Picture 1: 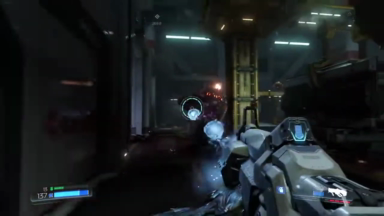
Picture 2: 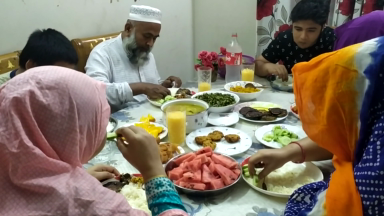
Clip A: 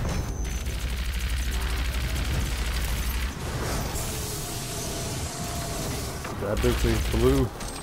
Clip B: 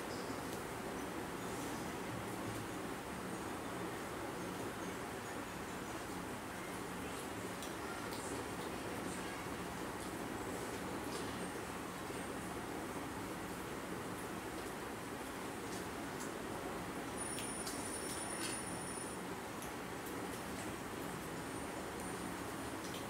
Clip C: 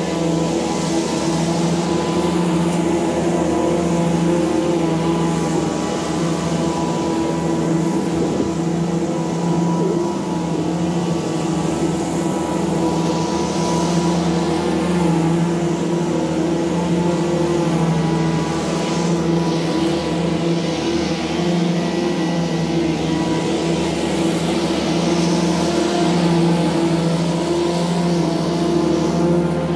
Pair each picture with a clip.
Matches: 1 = A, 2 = B